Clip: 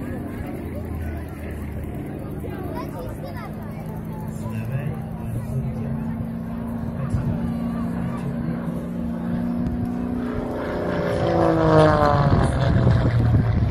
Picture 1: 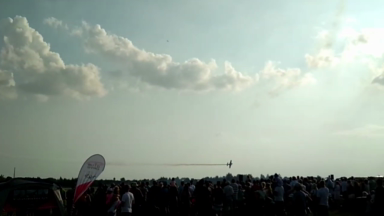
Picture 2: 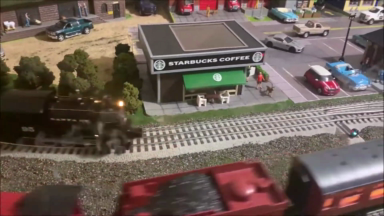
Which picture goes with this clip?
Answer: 1